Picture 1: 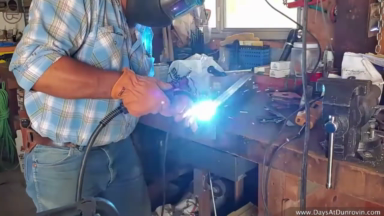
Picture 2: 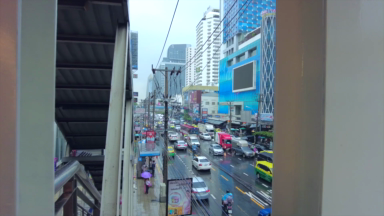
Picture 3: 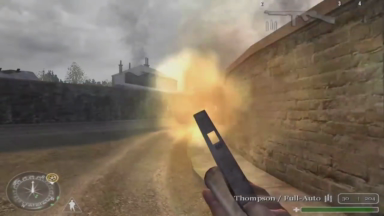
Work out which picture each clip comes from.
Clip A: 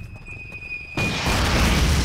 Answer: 3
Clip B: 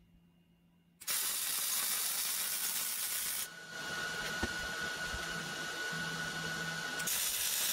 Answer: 1